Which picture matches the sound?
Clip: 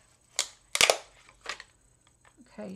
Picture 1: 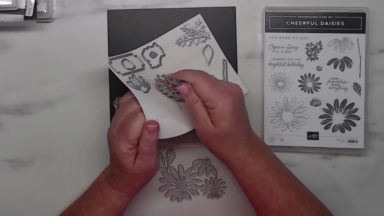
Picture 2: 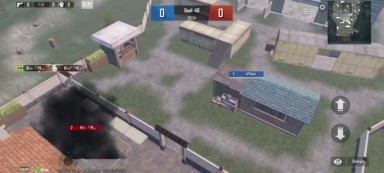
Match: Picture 1